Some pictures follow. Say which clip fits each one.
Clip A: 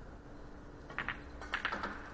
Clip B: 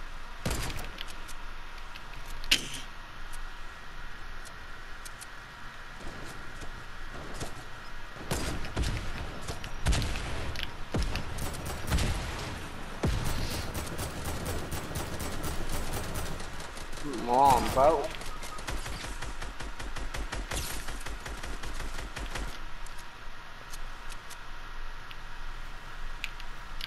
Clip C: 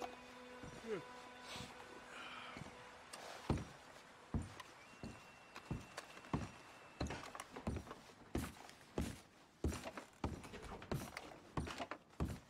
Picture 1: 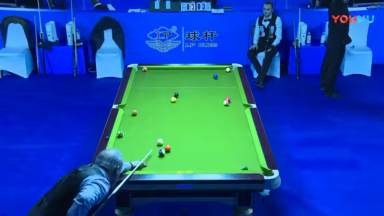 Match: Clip A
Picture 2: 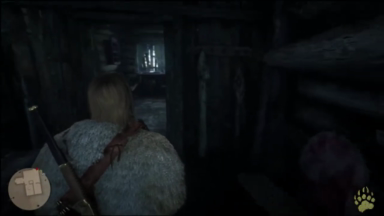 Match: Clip C